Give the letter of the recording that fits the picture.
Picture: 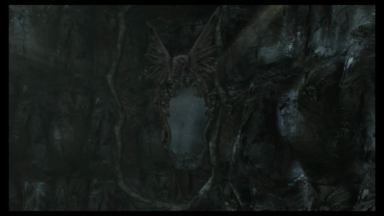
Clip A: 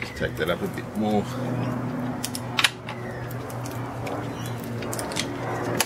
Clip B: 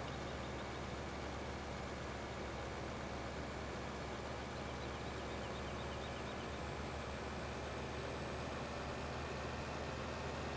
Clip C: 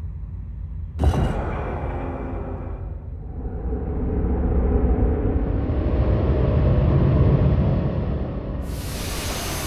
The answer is C